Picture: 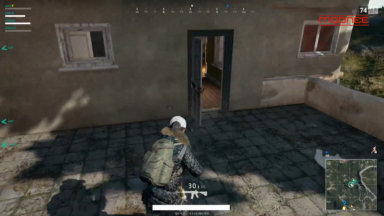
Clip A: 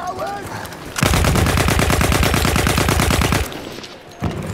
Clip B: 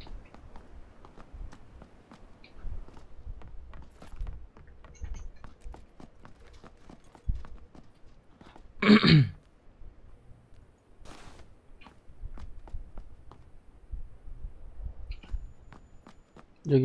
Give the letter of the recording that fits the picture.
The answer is B